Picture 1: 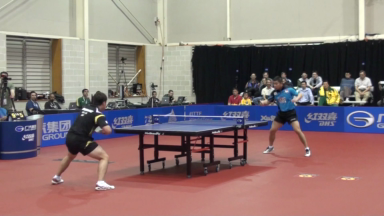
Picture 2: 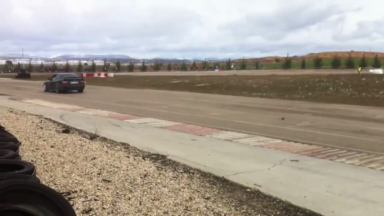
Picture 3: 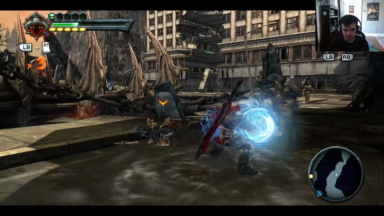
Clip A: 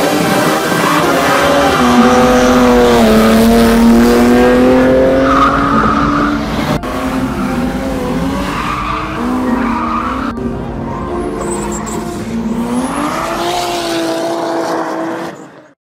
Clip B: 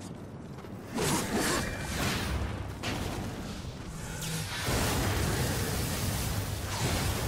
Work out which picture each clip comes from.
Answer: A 2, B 3